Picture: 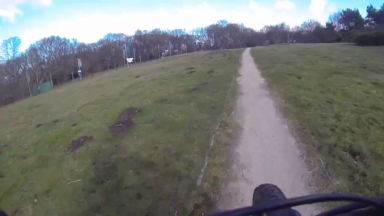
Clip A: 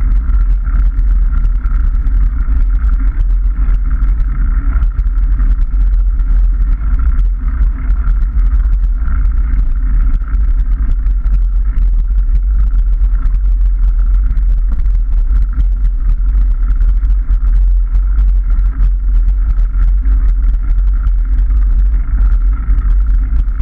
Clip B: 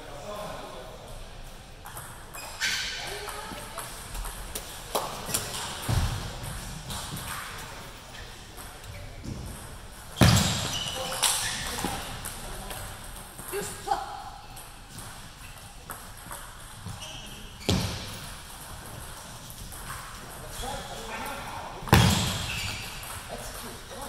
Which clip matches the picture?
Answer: A